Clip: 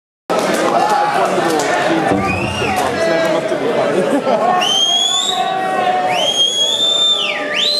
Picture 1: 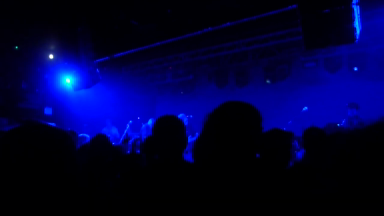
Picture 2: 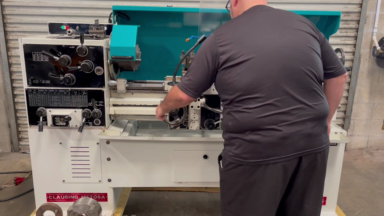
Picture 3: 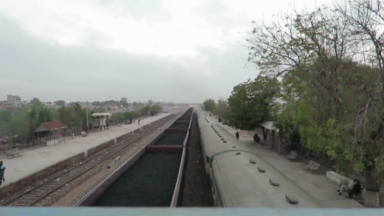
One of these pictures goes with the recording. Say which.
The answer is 1